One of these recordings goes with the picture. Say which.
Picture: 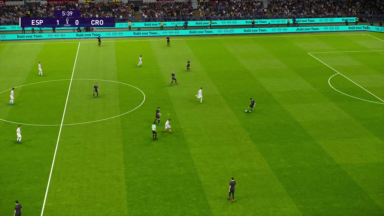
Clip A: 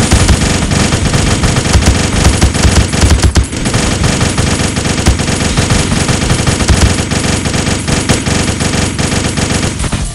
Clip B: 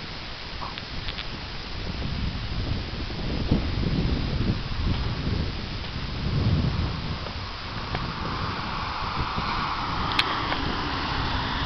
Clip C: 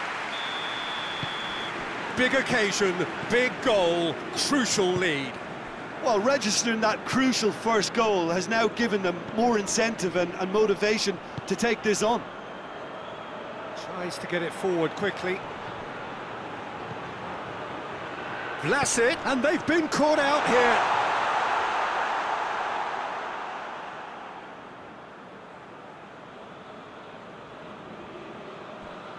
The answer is C